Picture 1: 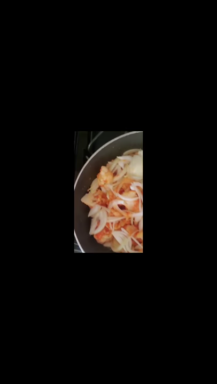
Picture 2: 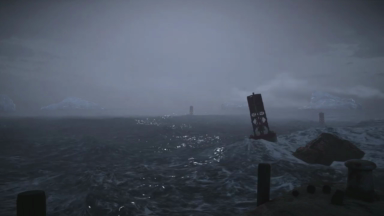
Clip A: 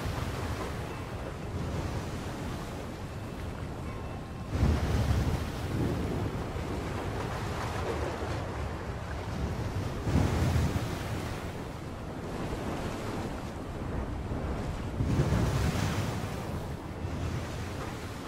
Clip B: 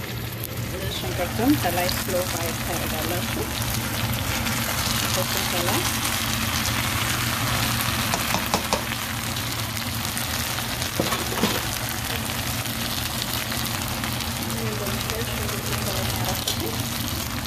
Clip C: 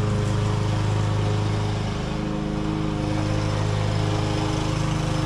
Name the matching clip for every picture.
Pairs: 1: B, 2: A